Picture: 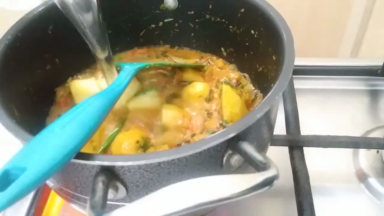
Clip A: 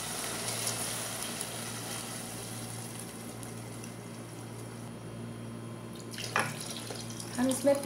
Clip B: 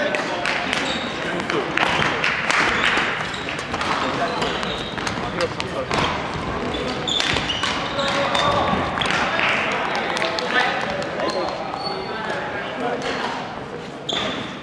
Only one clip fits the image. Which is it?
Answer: A